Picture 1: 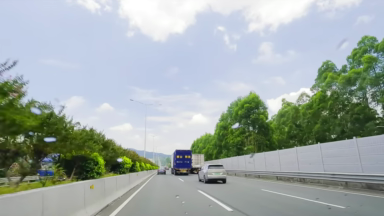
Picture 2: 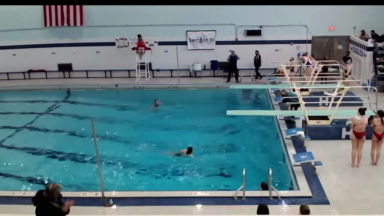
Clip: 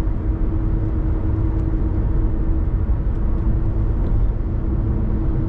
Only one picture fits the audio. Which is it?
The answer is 1